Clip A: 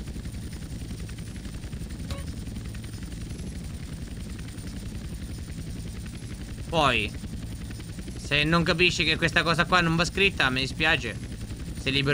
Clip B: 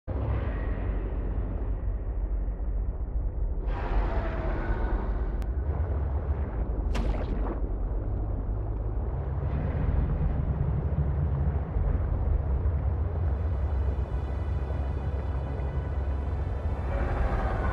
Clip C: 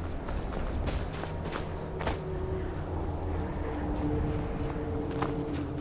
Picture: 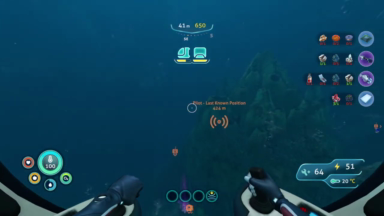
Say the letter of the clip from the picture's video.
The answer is B